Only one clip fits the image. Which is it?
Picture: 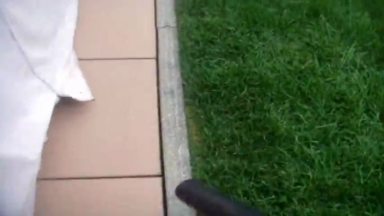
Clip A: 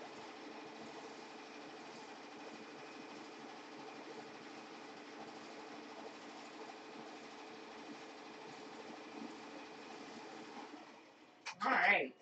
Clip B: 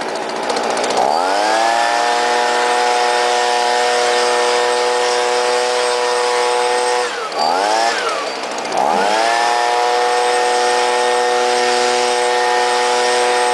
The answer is B